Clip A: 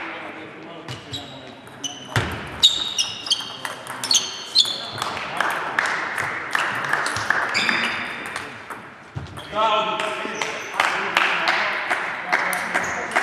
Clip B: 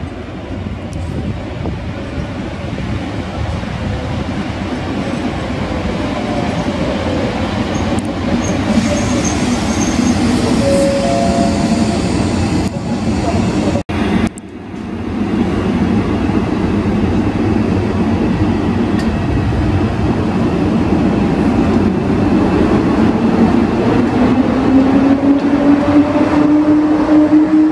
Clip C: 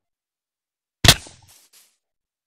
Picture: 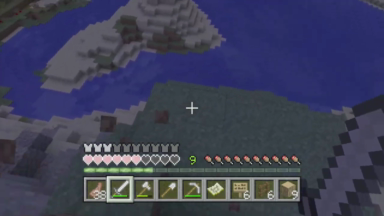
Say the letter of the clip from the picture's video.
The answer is C